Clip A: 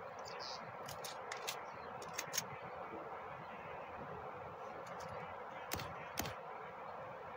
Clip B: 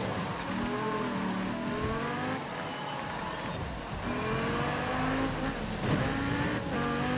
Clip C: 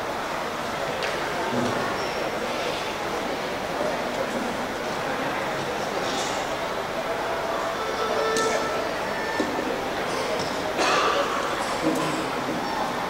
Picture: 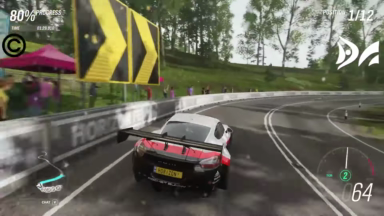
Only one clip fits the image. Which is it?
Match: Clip B